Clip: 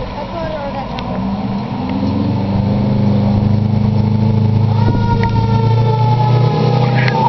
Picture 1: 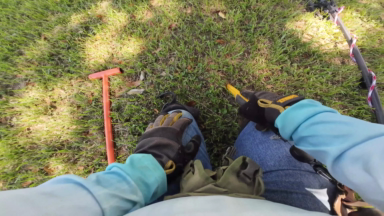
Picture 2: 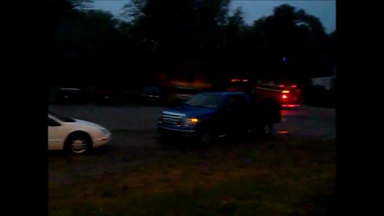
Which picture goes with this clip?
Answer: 2